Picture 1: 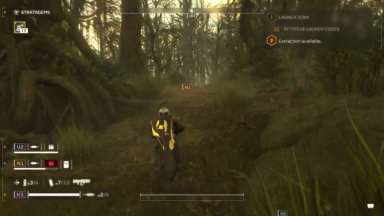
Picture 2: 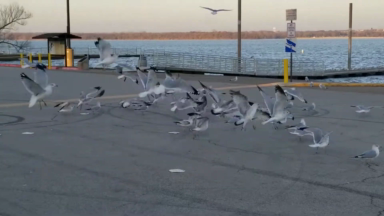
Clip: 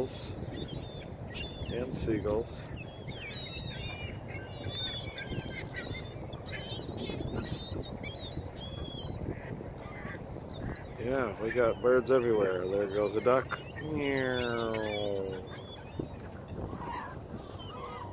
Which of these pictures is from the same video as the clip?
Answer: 2